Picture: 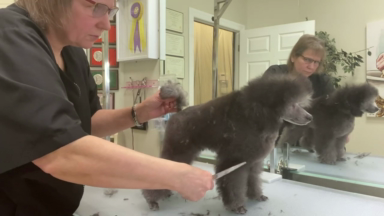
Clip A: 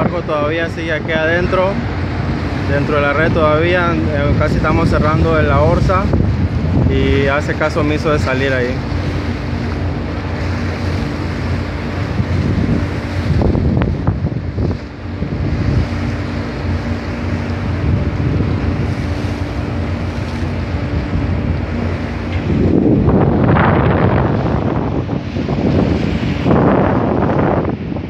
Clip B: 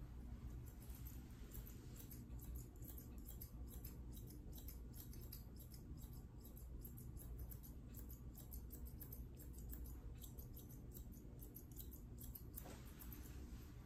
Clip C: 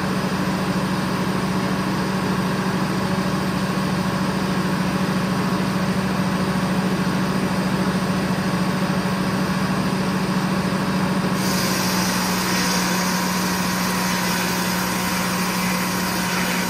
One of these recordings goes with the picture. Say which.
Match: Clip B